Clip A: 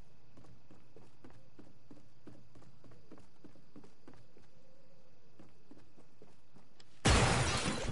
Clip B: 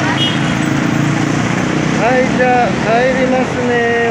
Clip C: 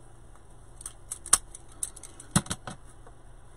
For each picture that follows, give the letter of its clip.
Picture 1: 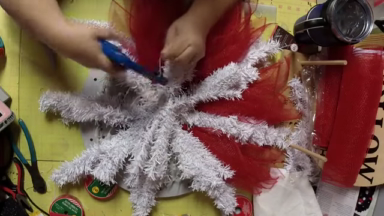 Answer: C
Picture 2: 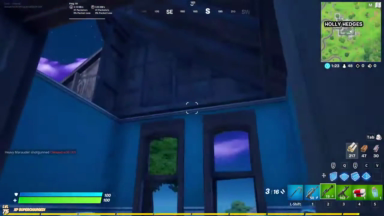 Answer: A